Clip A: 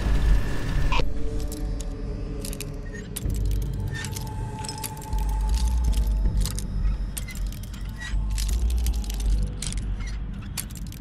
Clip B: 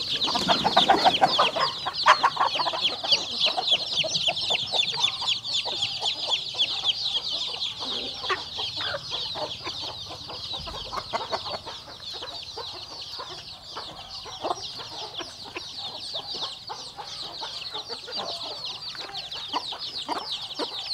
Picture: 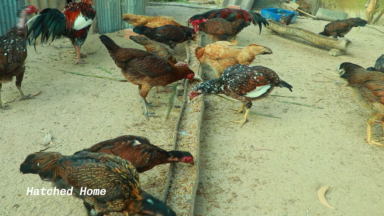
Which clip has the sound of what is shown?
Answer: B